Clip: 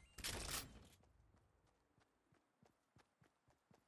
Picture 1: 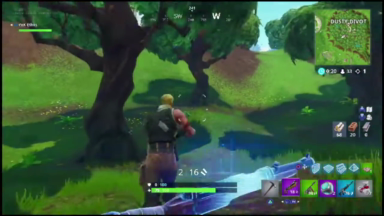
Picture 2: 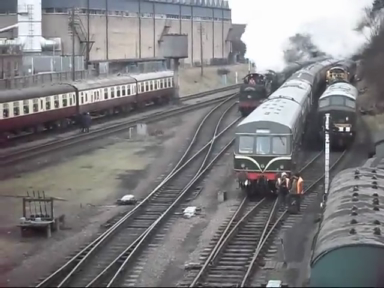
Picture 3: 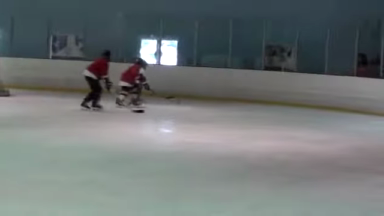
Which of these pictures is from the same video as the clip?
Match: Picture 1